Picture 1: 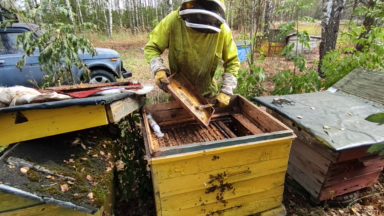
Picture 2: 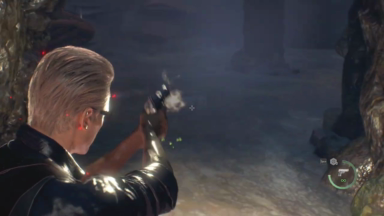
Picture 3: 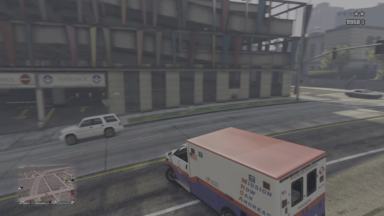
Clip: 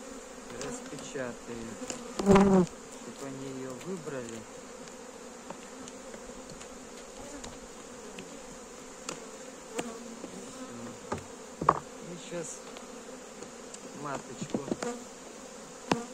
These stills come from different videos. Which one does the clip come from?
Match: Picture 1